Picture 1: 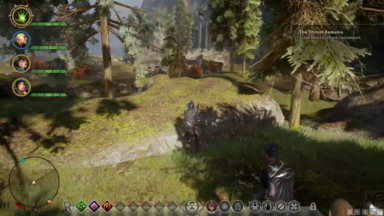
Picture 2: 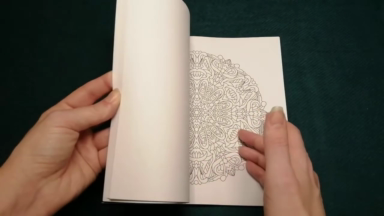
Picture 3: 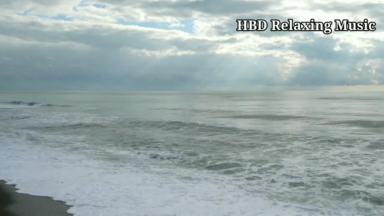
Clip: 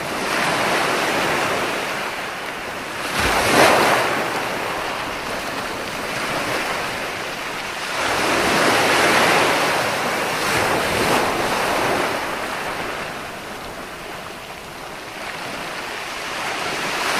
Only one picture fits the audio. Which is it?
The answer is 3